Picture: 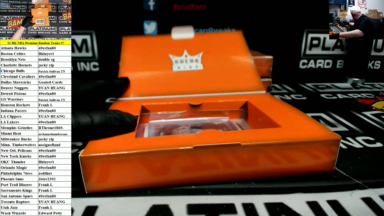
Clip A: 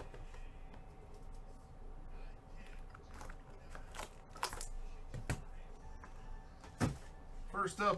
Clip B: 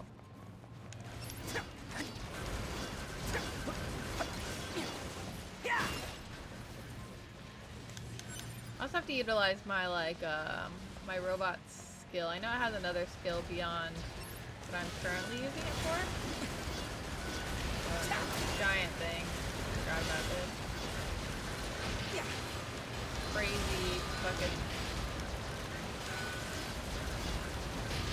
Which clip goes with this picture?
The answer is A